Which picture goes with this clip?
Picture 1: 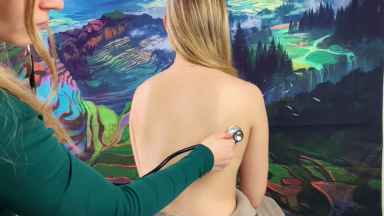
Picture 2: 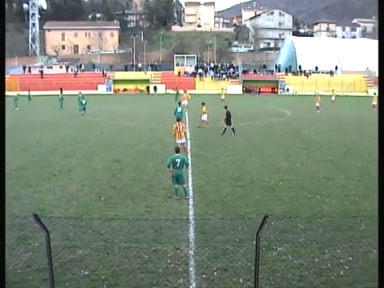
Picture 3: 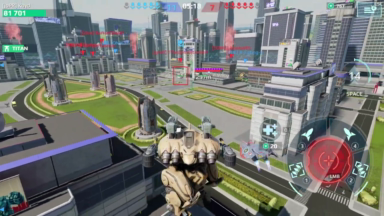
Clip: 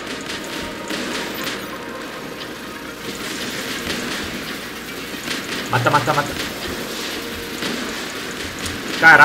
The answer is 3